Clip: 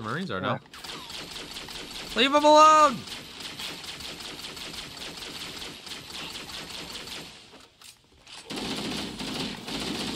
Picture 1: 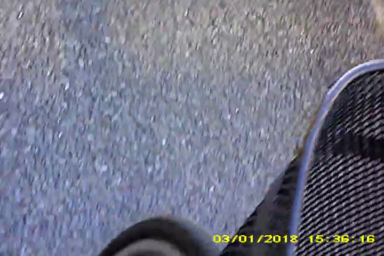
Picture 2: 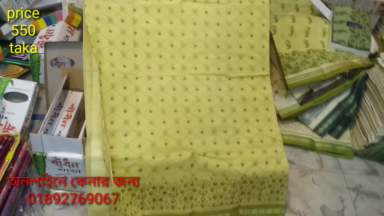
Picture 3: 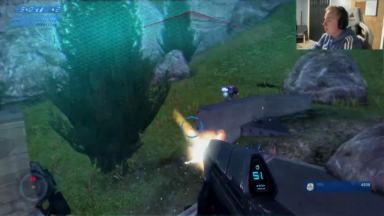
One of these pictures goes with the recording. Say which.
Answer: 3